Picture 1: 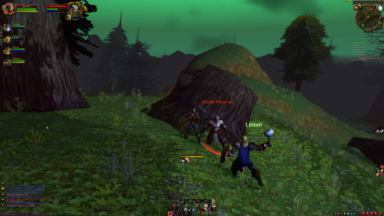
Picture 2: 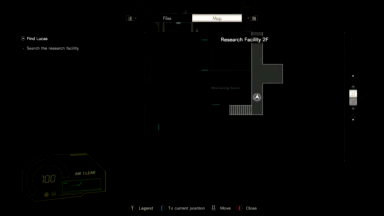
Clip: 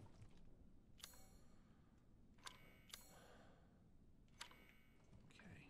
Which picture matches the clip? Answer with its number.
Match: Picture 2